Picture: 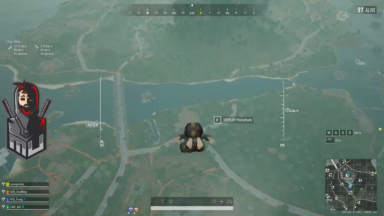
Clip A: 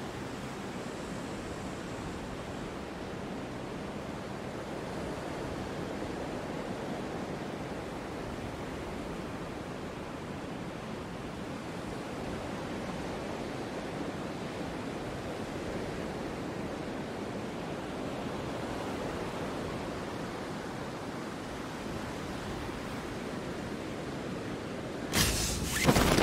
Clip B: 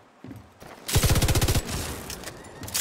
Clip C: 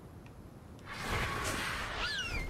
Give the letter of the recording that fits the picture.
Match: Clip A